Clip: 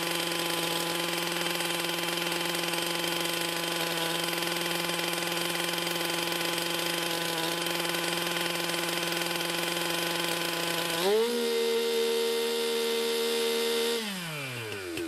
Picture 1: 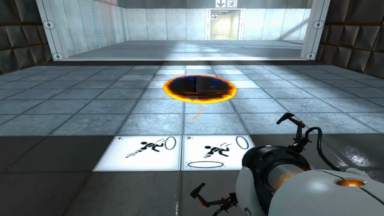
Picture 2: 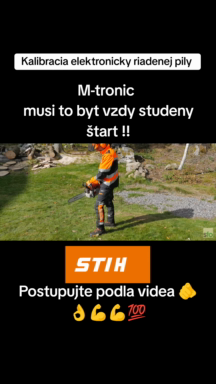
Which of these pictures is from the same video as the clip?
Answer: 2